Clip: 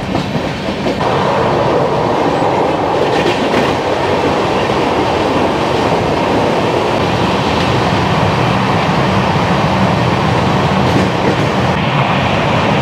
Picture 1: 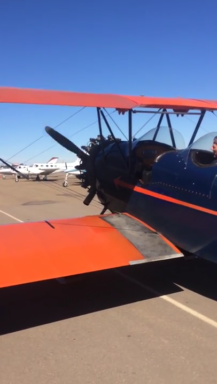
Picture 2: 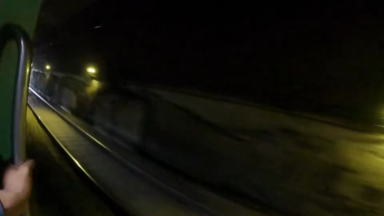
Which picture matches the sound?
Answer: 2